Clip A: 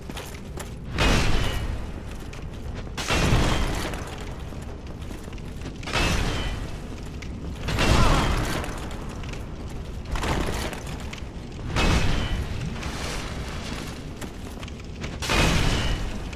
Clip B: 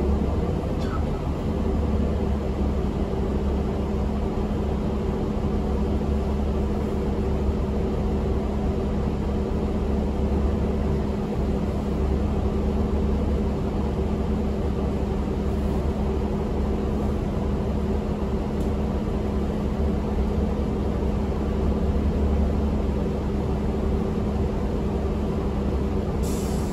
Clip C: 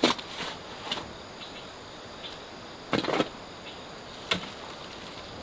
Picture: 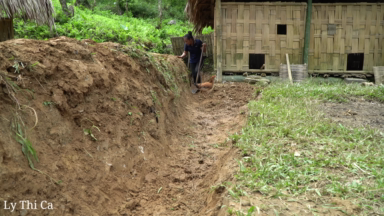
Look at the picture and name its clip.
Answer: C